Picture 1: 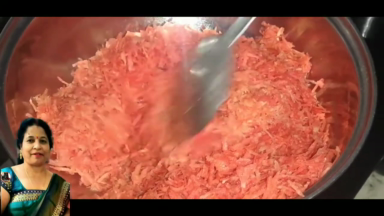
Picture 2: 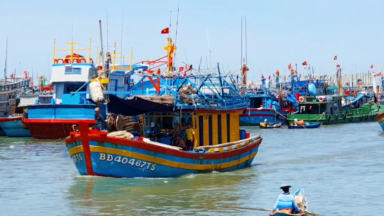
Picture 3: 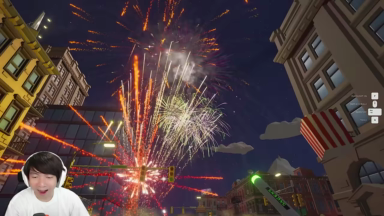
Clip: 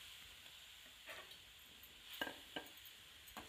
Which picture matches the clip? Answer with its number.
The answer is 1